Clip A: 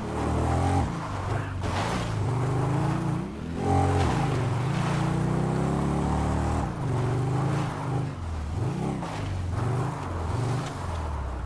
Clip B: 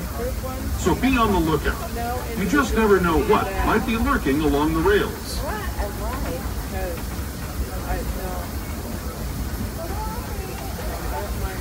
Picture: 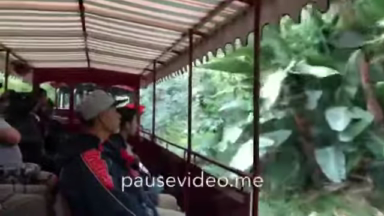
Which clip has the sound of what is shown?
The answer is B